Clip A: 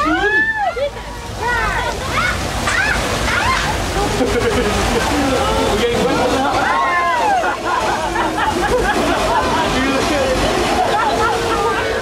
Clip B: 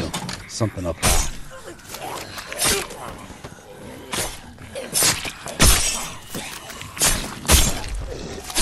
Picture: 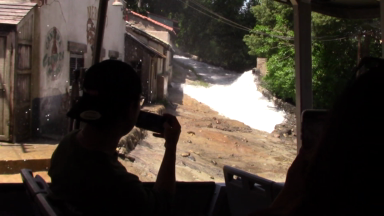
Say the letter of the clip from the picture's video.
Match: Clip A